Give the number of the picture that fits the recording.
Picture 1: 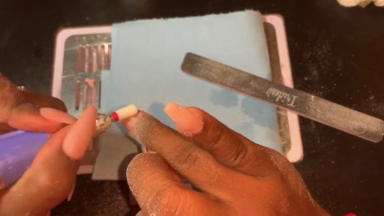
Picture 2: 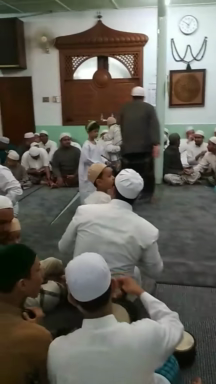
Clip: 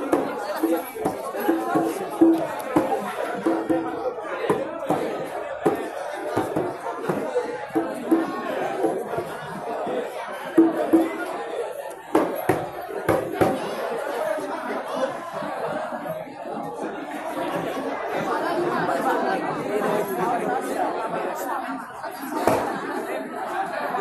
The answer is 2